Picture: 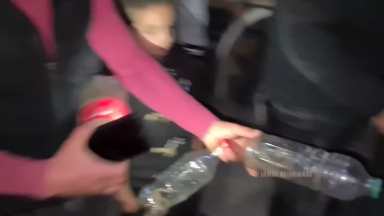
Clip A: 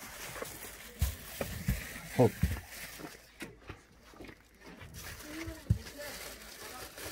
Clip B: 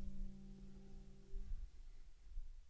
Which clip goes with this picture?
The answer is A